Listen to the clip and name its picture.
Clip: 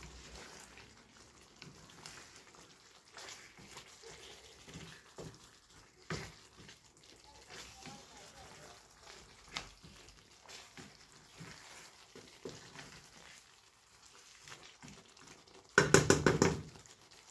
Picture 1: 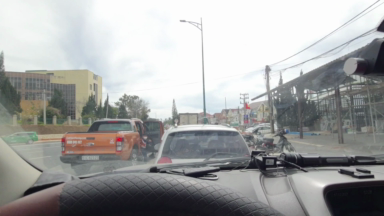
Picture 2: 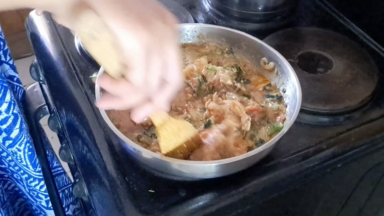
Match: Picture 2